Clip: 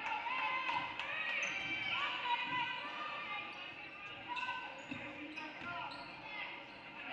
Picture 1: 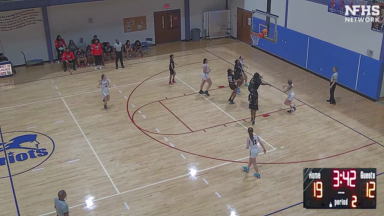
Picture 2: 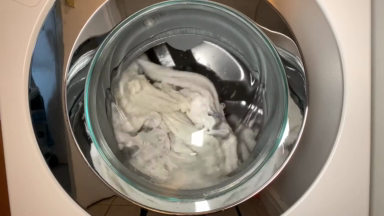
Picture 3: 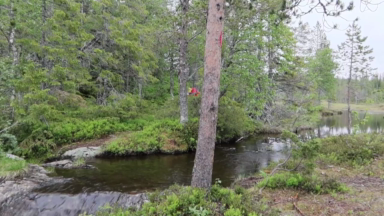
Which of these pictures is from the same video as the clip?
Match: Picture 1